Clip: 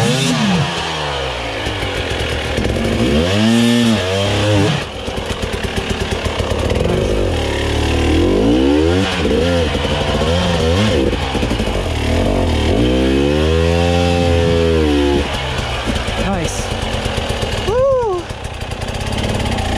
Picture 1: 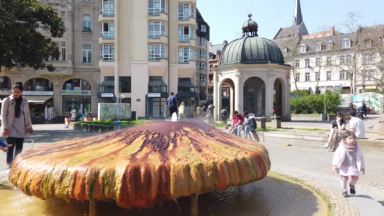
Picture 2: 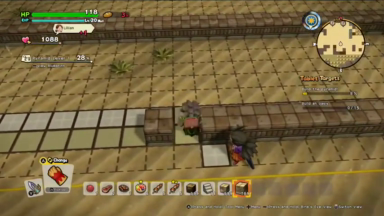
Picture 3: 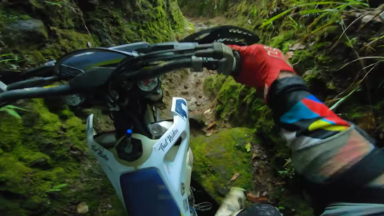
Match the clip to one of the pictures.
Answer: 3